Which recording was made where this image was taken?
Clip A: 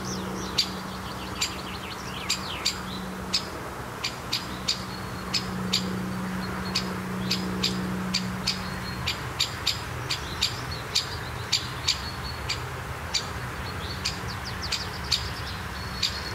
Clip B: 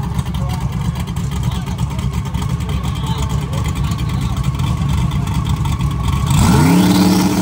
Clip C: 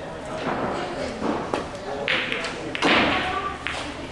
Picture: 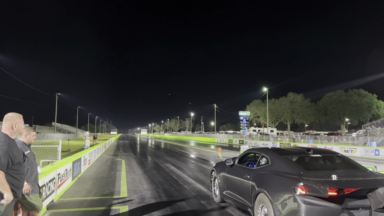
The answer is B